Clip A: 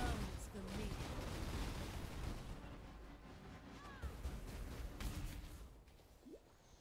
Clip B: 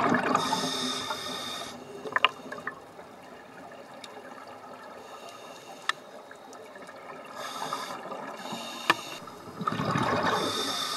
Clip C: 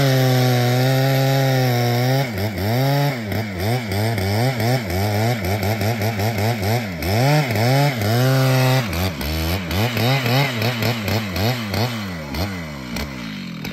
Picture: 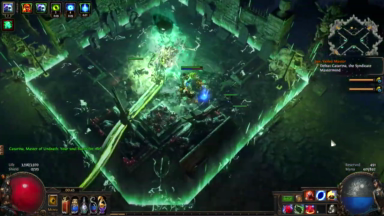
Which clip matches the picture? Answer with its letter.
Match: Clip A